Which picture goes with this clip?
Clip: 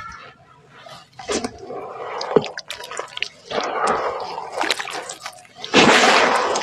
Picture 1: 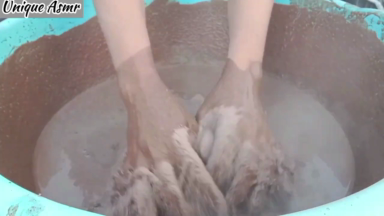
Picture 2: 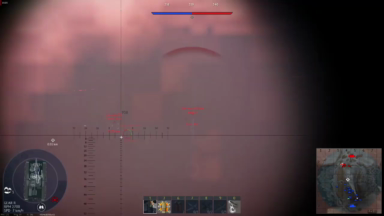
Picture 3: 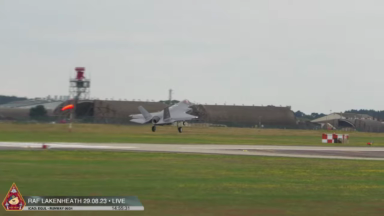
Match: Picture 1